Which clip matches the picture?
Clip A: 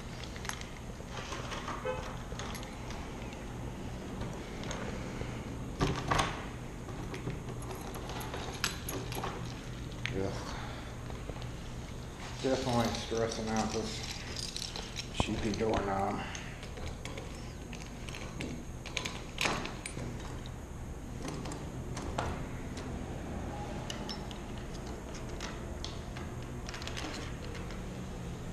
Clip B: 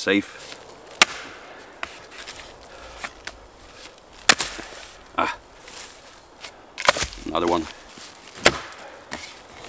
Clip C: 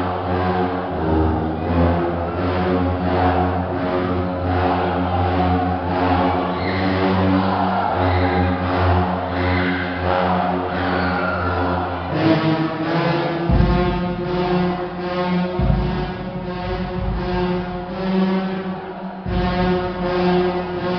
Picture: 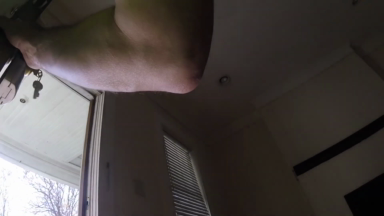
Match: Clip A